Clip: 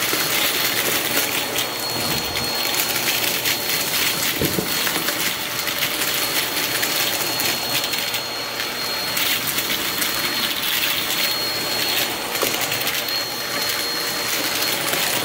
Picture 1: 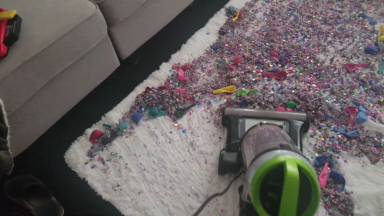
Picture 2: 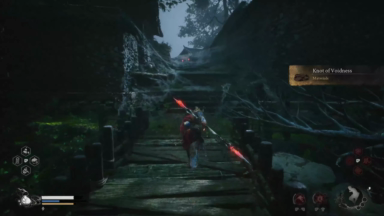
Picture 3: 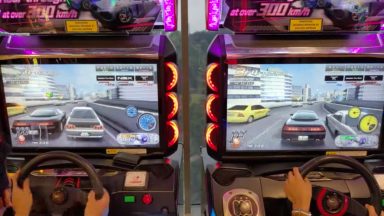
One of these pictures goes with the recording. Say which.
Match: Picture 1